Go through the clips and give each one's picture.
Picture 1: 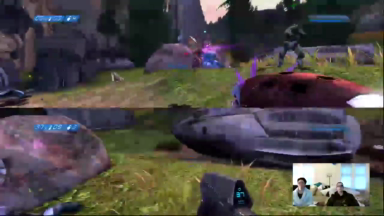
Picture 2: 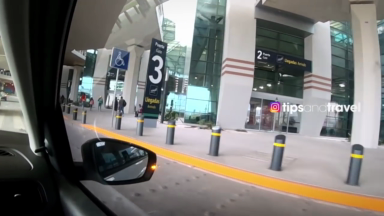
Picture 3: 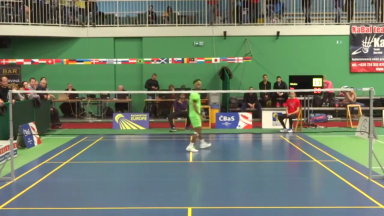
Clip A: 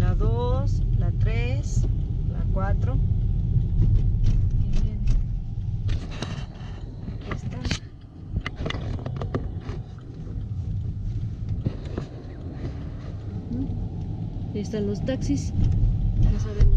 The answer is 2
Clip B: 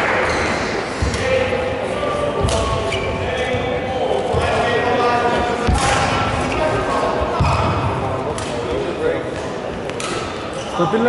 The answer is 3